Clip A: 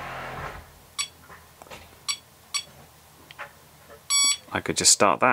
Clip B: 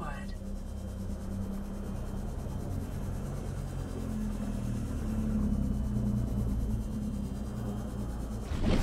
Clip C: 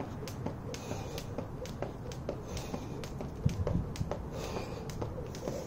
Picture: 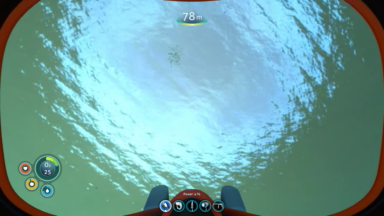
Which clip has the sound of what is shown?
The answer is B